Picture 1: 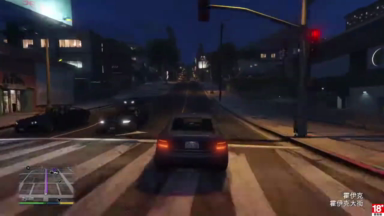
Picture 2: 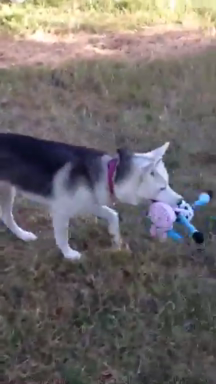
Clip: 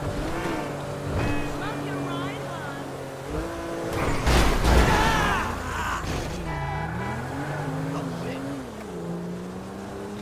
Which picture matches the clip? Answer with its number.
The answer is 1